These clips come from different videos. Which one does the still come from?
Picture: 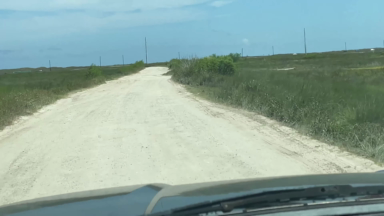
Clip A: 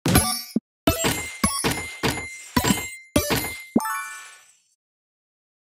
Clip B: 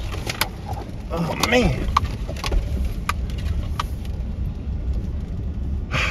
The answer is B